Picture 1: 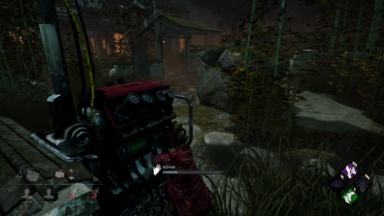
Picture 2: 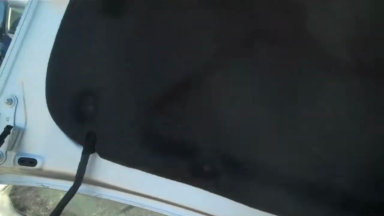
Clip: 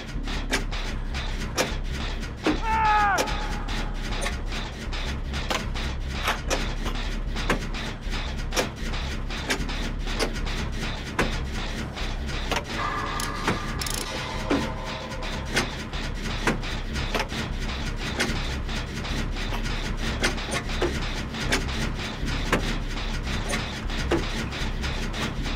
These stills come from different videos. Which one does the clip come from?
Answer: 1